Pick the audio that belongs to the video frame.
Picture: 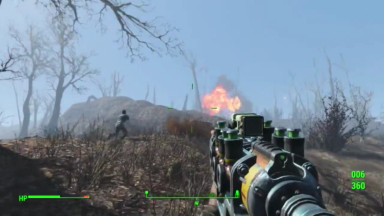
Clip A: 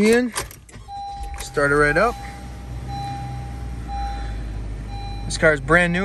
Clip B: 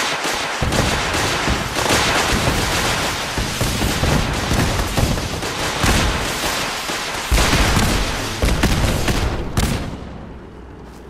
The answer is B